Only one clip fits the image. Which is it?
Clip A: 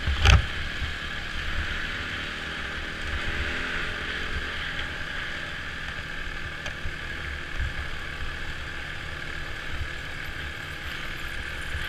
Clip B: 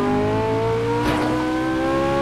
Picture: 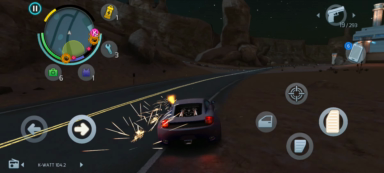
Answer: B